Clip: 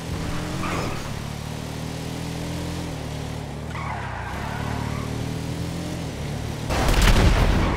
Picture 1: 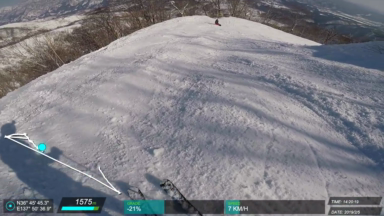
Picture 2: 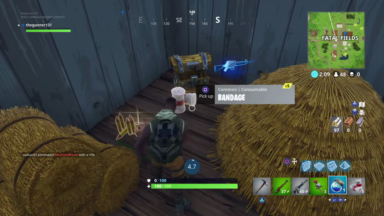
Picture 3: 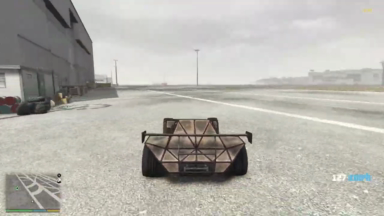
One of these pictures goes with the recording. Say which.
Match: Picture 3